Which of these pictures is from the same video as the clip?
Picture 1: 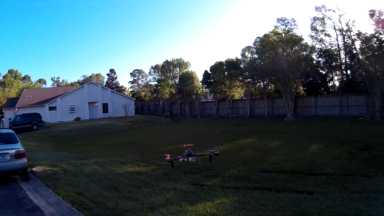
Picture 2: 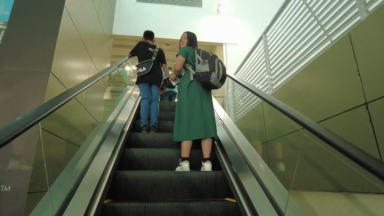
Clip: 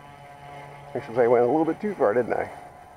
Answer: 1